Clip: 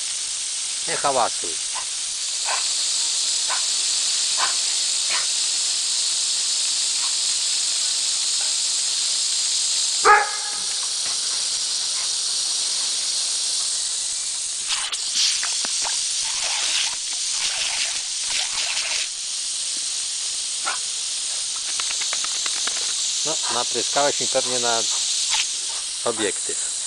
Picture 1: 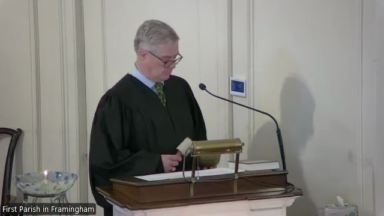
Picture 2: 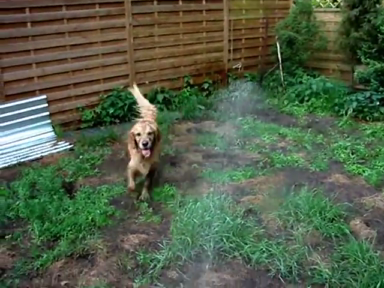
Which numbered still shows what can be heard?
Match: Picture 2